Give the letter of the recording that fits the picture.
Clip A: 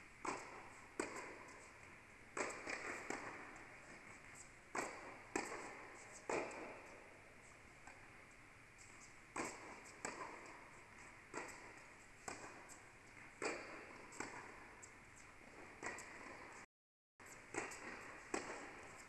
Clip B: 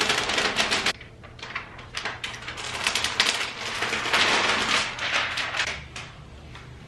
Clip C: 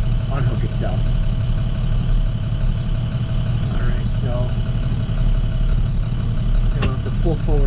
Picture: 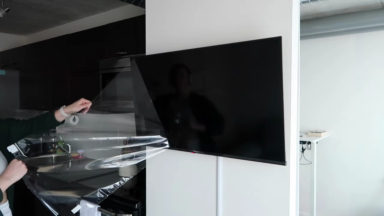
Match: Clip B